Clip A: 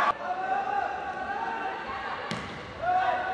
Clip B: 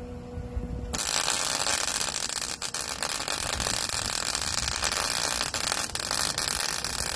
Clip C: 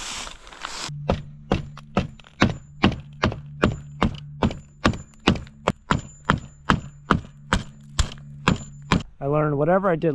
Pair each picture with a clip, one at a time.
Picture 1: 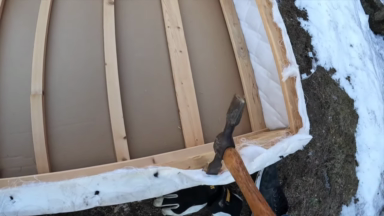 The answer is C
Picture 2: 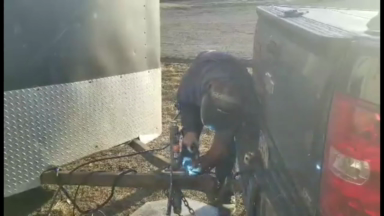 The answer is B